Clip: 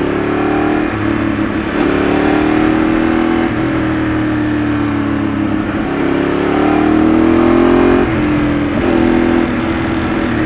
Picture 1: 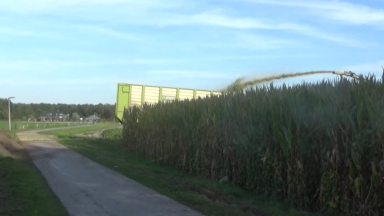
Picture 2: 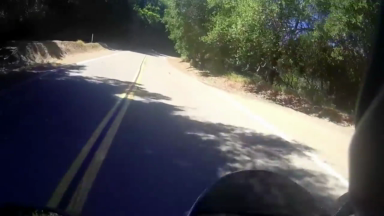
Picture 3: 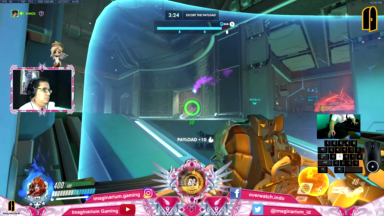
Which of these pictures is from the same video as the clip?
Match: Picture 2